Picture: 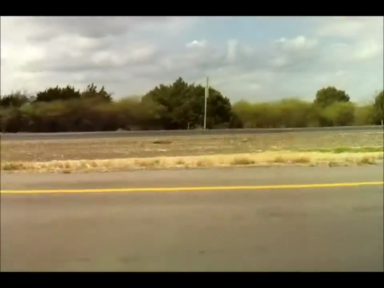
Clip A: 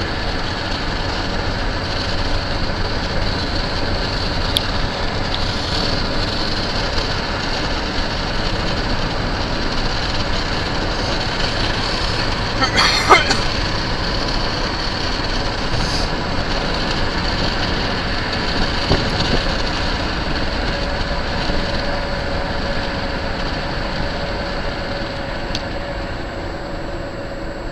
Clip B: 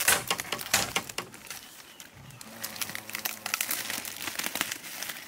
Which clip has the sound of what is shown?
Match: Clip A